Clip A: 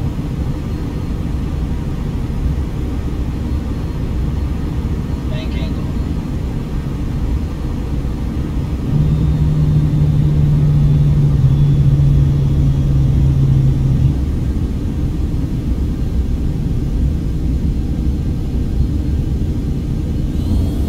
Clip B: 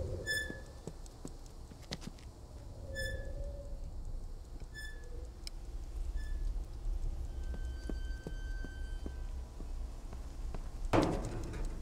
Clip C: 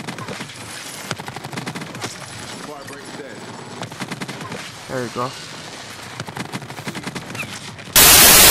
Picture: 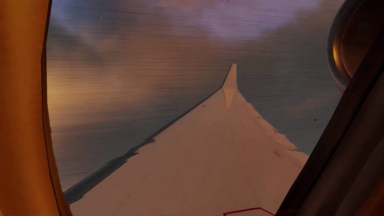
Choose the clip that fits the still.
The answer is A